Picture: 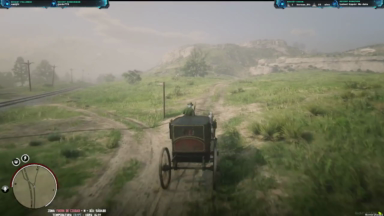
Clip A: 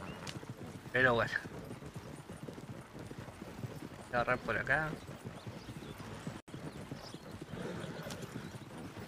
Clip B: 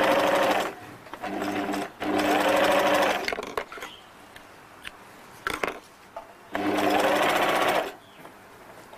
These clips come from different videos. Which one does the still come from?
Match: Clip A